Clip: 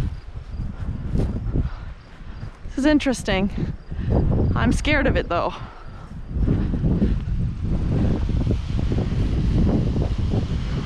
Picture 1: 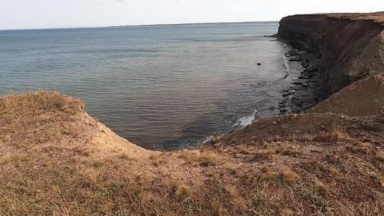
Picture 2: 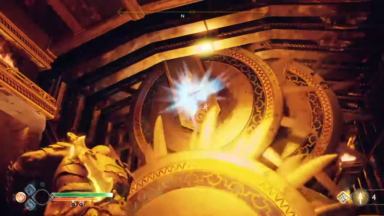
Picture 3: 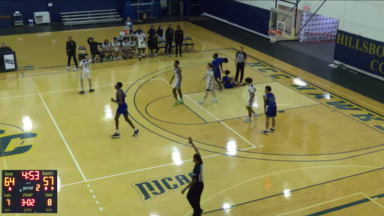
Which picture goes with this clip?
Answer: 1